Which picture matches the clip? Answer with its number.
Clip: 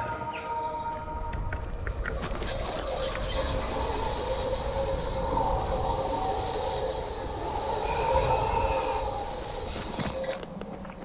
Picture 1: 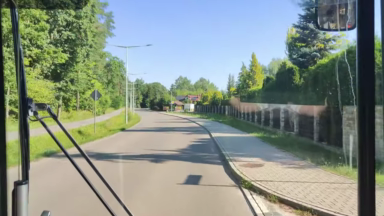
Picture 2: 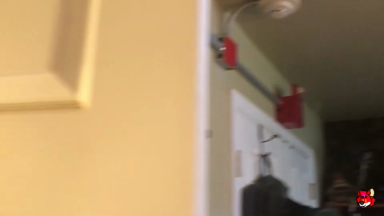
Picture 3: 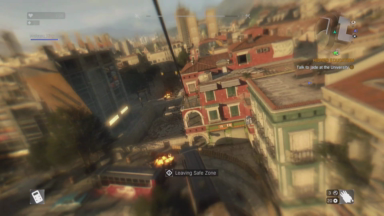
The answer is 3